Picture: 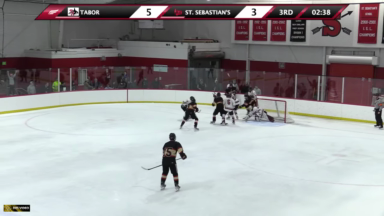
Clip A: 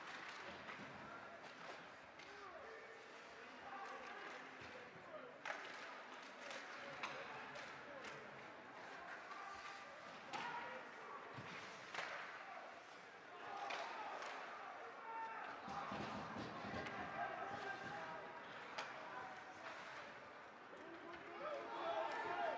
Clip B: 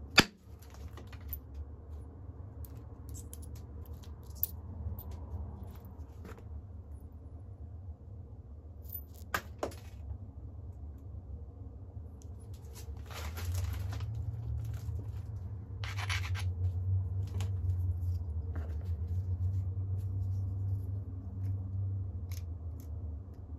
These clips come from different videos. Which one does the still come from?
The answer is A